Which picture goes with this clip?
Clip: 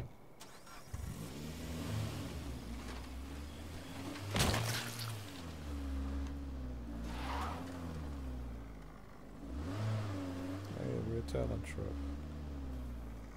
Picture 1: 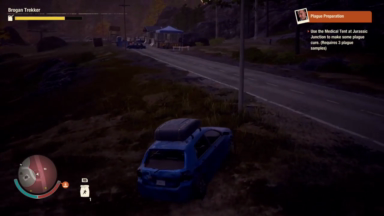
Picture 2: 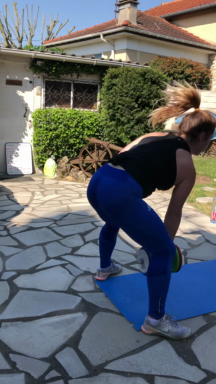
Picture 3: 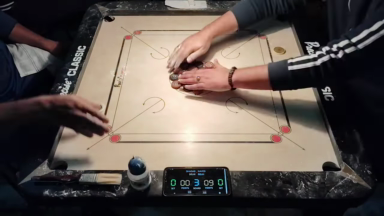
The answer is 1